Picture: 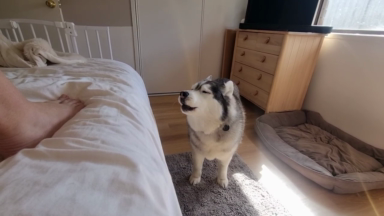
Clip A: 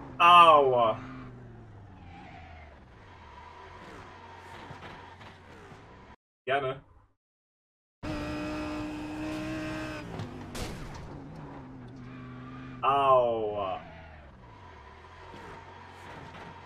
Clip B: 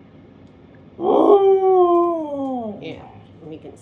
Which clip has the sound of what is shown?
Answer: B